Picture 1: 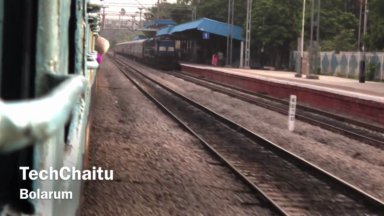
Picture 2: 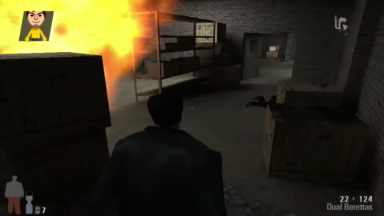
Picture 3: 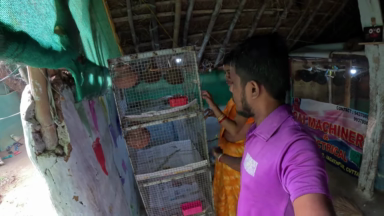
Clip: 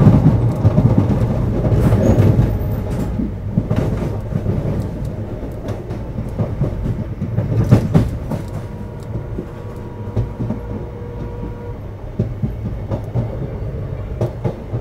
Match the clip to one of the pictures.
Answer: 1